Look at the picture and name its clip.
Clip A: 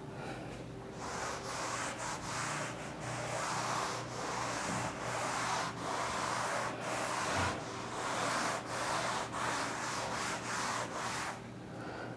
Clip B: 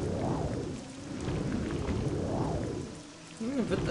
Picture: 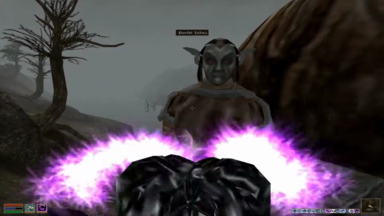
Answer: B